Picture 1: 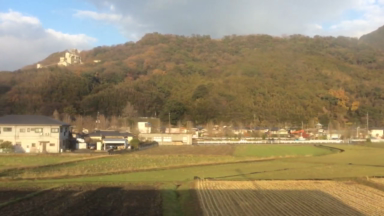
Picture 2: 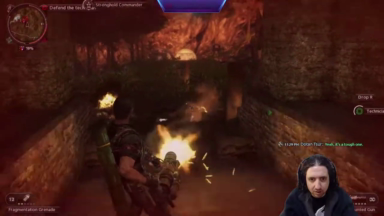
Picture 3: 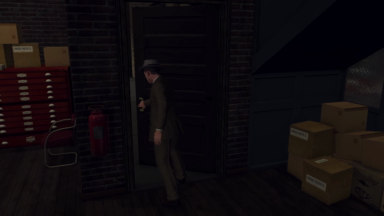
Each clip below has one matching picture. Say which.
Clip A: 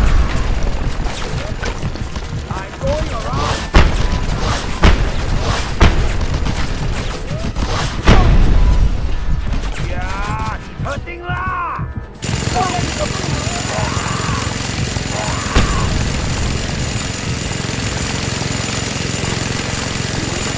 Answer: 2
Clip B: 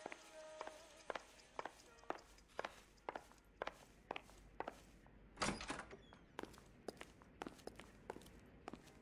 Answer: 3